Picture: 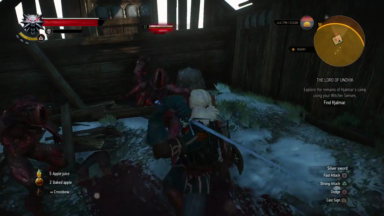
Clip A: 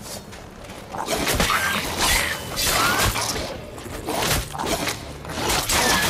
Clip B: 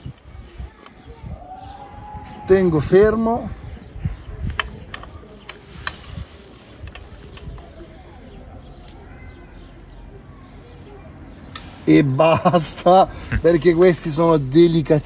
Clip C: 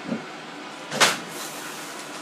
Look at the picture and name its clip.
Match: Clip A